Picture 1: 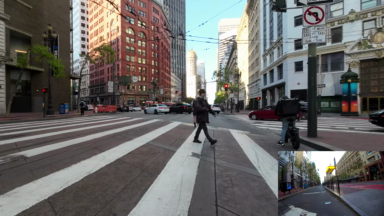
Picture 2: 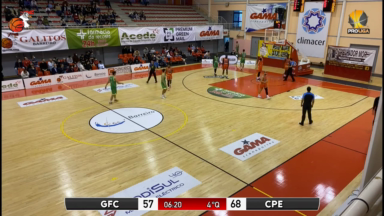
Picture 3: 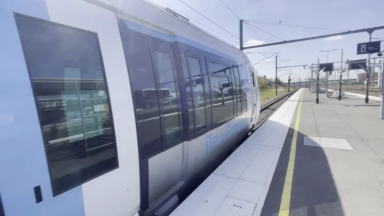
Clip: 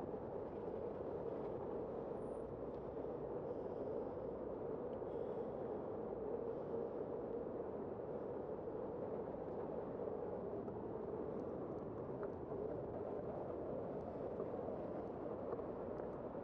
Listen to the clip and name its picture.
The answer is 1